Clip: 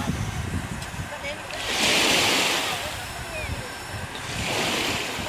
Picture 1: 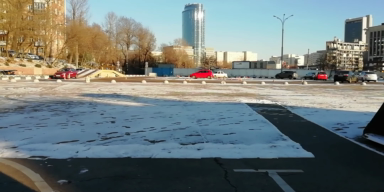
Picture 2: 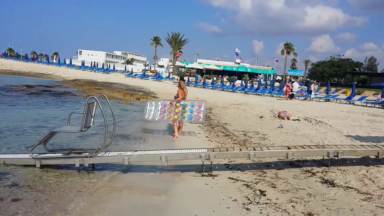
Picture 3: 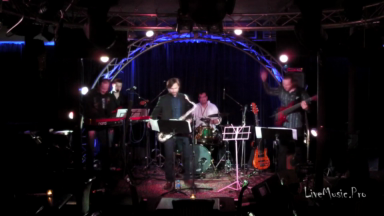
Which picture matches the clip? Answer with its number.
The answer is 2